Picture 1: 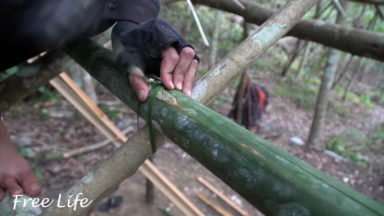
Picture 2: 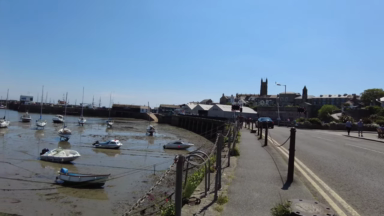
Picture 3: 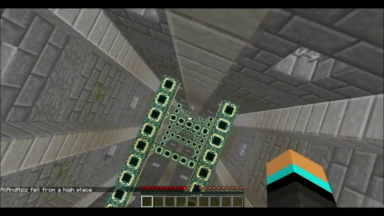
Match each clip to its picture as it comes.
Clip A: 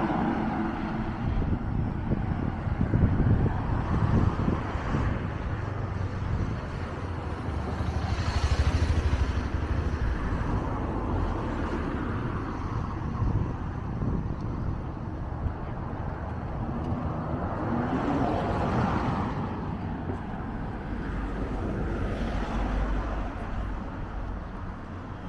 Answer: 2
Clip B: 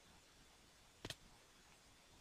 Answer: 3